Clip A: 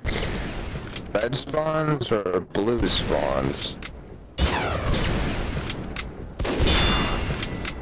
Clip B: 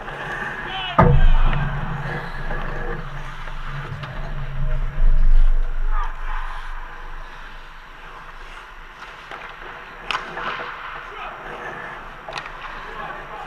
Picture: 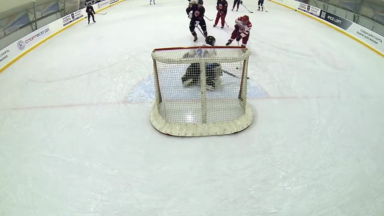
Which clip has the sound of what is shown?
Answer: B